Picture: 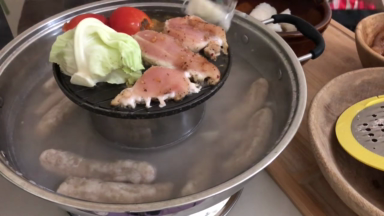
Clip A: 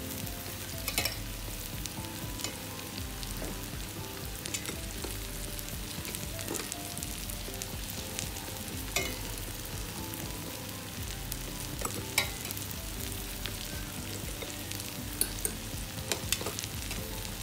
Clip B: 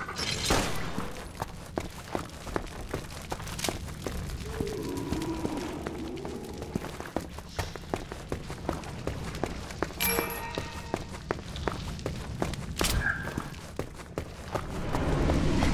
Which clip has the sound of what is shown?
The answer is A